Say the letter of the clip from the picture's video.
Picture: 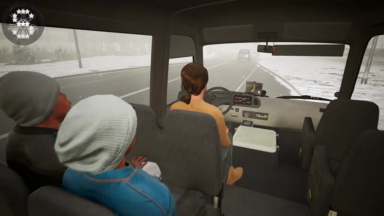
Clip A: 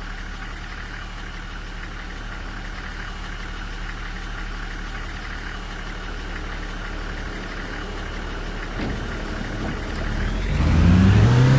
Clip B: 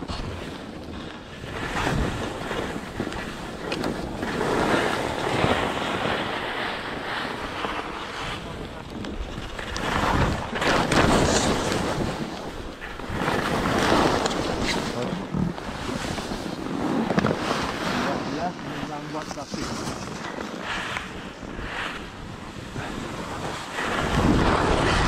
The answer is A